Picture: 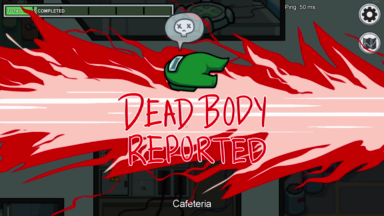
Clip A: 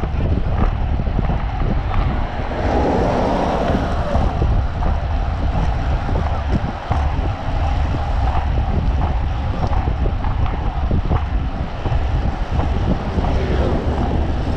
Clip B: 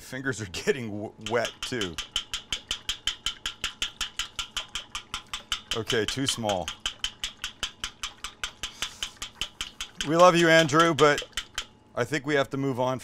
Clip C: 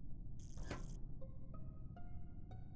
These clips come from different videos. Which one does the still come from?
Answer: C